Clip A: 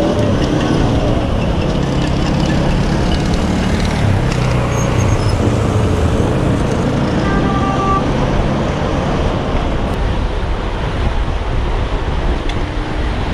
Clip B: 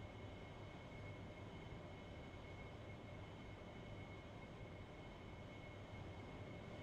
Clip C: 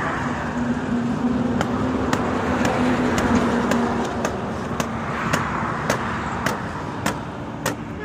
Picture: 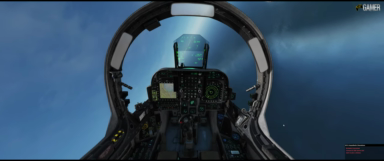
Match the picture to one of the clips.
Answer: B